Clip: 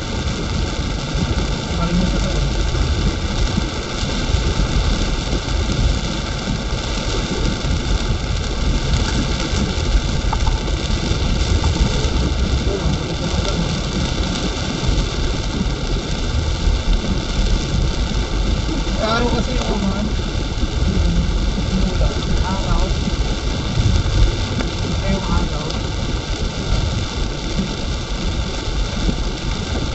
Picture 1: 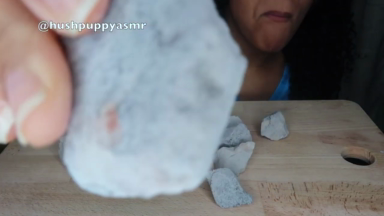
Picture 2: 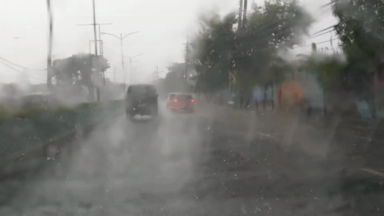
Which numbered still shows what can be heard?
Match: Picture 2